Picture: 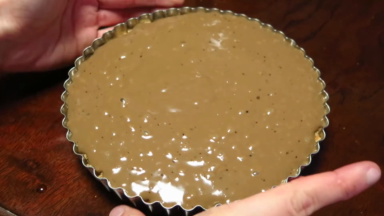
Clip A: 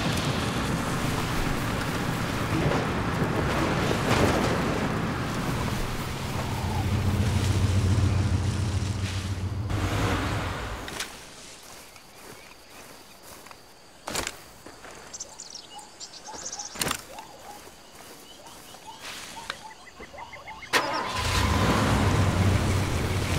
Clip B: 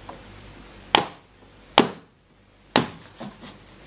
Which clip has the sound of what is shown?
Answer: B